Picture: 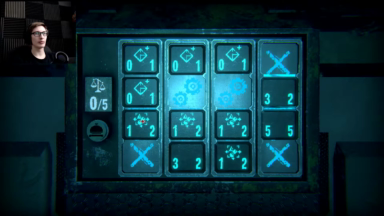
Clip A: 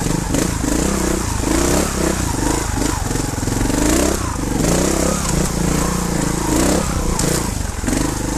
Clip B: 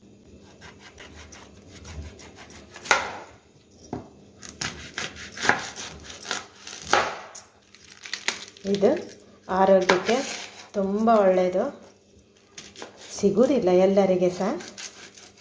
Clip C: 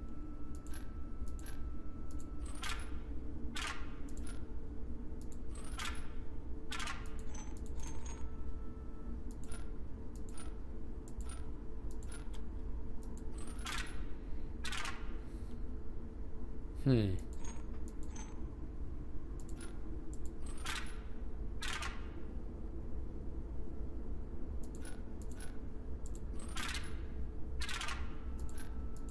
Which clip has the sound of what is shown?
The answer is C